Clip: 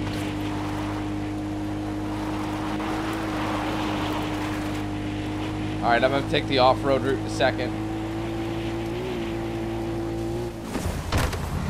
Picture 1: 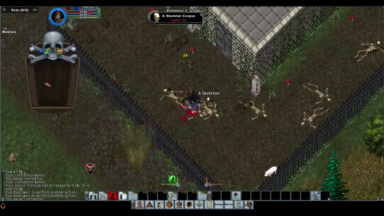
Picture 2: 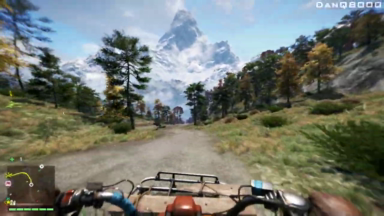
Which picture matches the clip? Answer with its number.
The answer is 2